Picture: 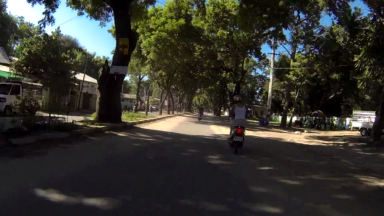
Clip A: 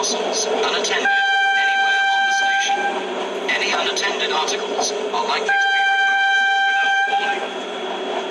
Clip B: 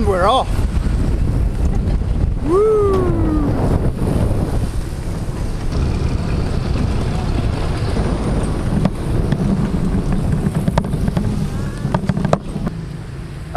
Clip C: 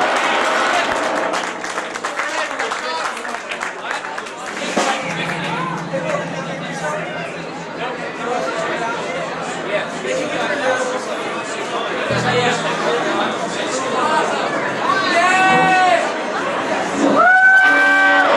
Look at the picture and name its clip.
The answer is B